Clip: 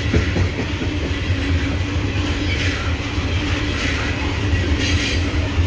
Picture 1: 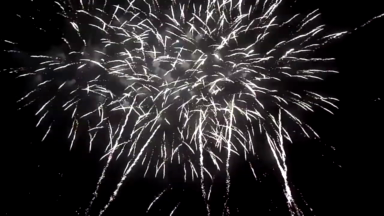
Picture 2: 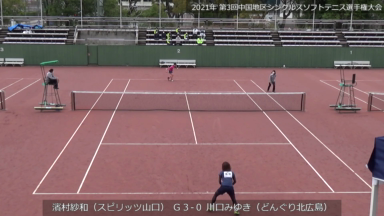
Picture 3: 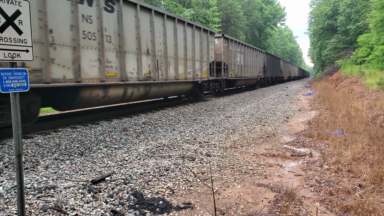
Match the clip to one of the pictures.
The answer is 3